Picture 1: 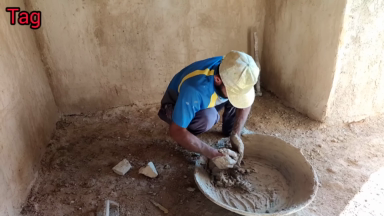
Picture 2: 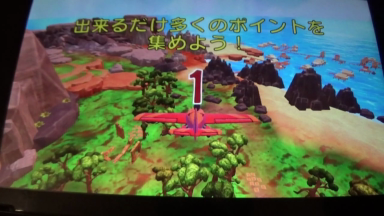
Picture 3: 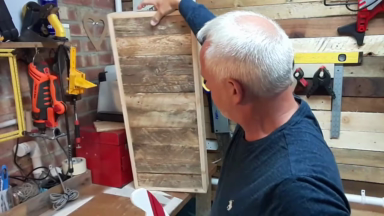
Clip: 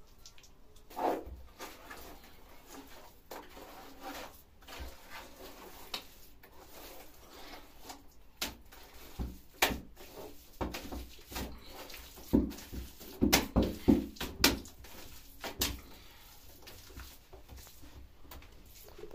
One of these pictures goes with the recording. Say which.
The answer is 1